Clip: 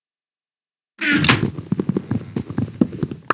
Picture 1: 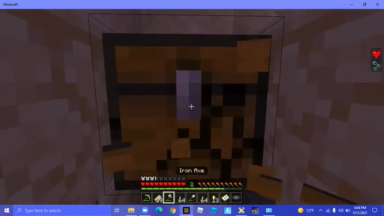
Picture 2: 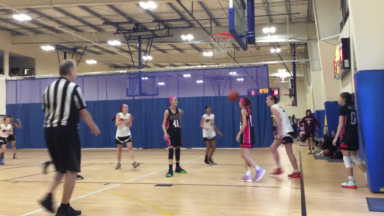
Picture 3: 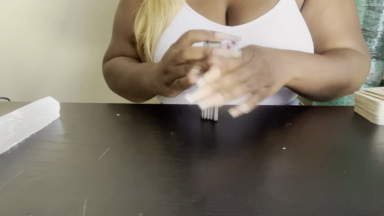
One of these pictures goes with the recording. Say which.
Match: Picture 1